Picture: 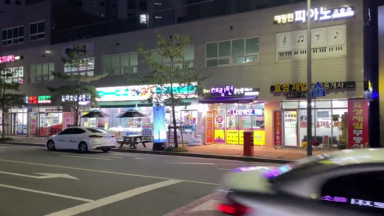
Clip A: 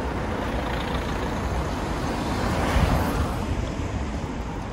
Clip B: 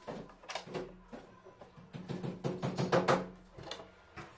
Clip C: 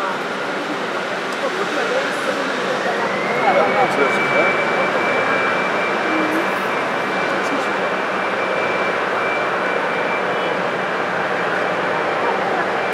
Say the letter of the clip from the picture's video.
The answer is A